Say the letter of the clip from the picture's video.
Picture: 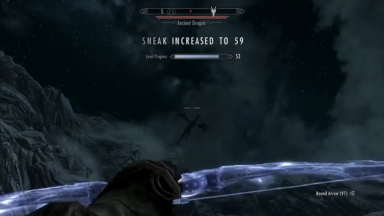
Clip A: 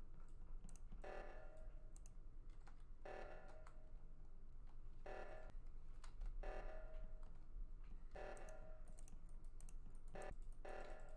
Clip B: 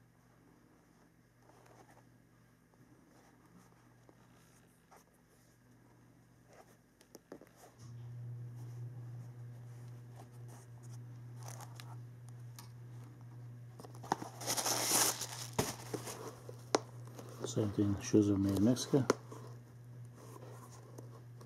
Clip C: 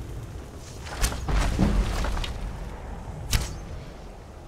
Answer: C